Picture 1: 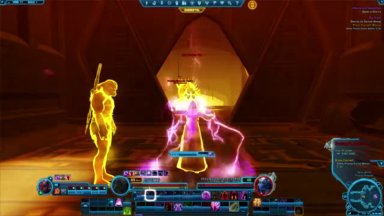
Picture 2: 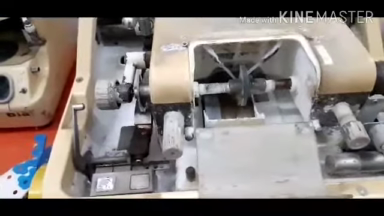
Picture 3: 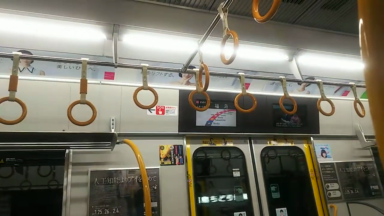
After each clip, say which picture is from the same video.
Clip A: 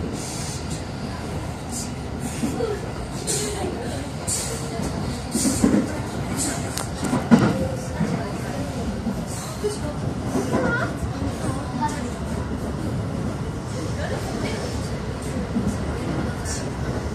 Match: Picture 3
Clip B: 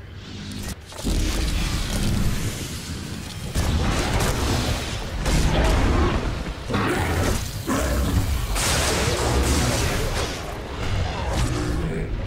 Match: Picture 1